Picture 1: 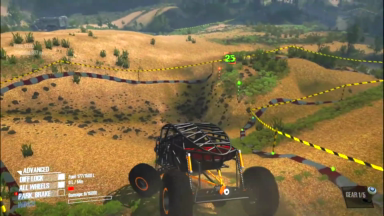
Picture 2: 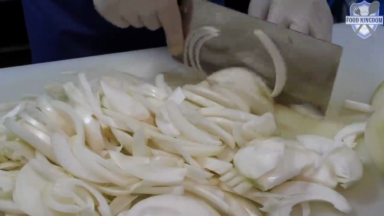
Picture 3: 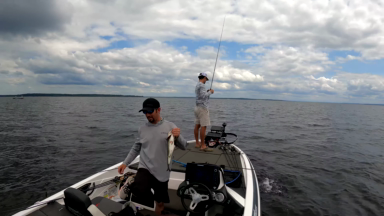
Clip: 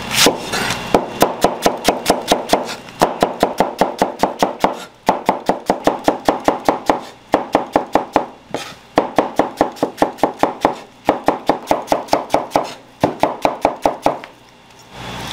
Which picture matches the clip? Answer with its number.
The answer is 2